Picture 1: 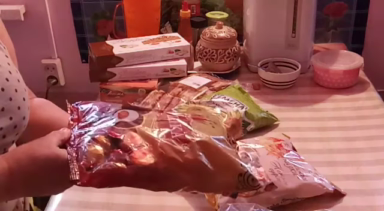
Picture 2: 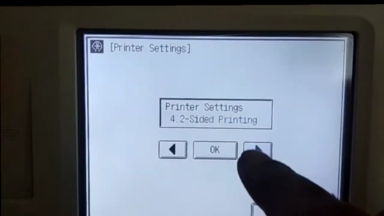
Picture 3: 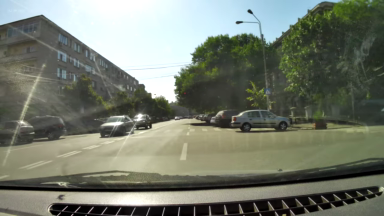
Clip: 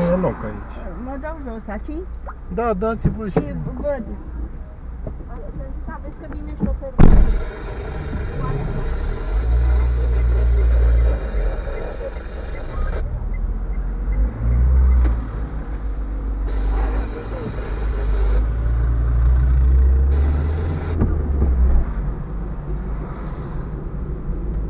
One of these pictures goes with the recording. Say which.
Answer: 3